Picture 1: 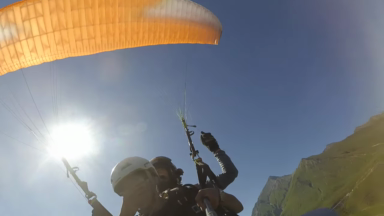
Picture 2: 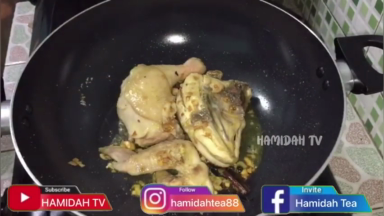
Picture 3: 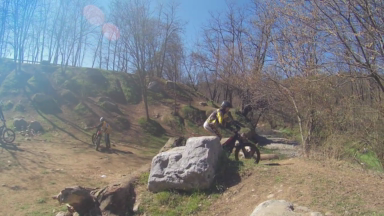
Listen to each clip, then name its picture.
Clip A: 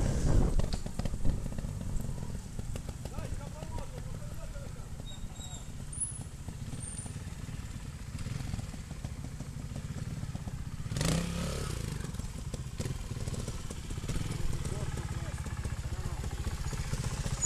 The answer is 3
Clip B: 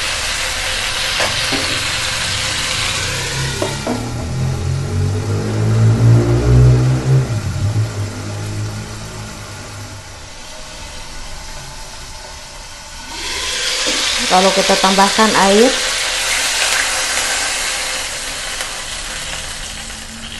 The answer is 2